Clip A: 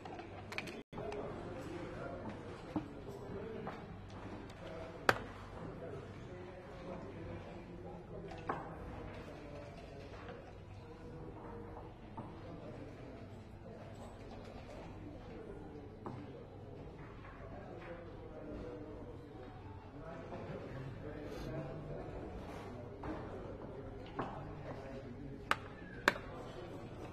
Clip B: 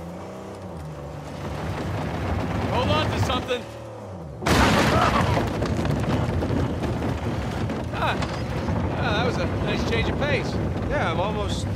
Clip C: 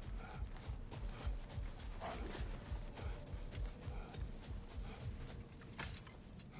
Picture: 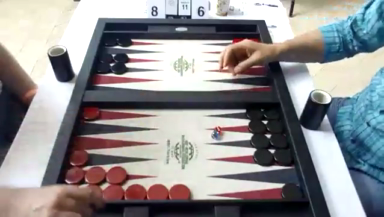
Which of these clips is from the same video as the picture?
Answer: A